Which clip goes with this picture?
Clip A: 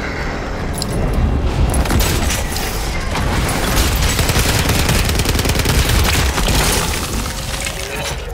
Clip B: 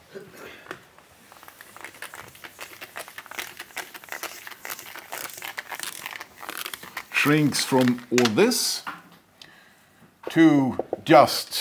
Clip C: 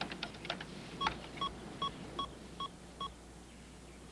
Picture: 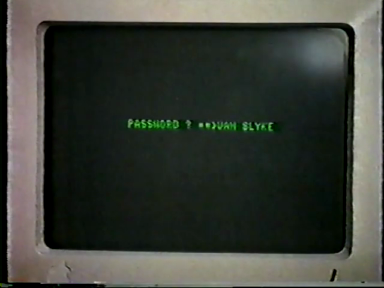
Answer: C